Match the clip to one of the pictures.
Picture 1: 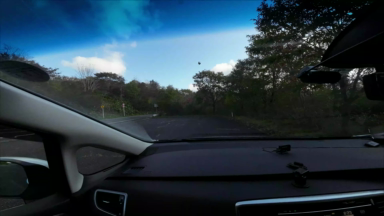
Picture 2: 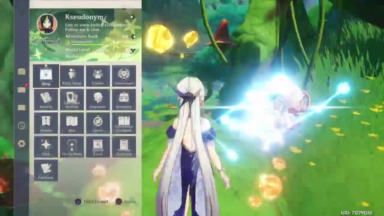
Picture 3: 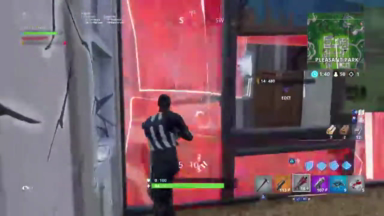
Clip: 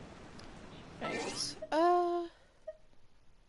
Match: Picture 2